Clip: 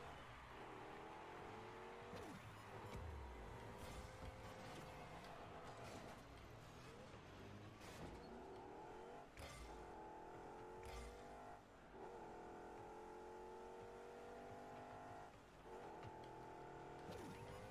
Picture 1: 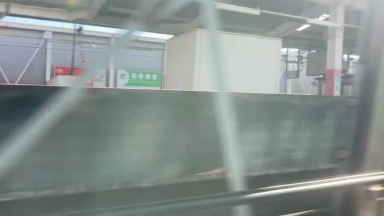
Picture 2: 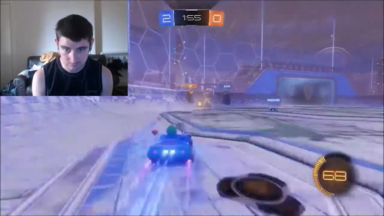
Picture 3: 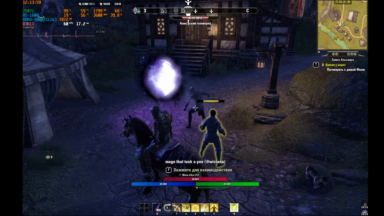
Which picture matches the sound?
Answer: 2